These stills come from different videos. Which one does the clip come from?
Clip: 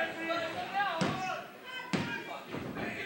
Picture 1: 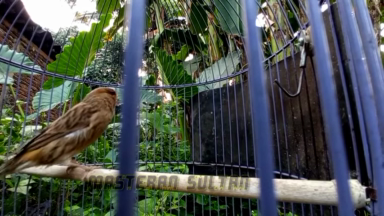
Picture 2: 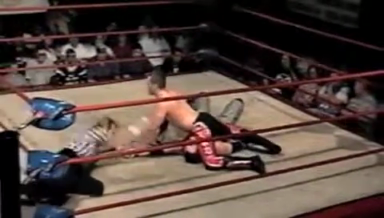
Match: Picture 2